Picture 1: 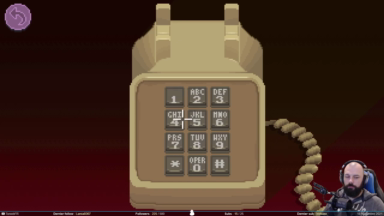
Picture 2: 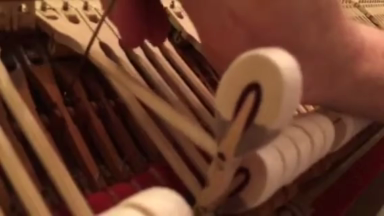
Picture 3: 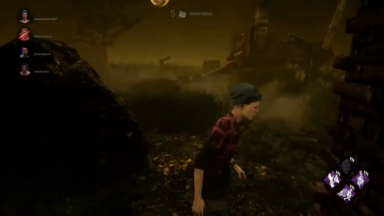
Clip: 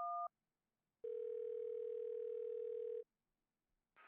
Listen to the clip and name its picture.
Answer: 1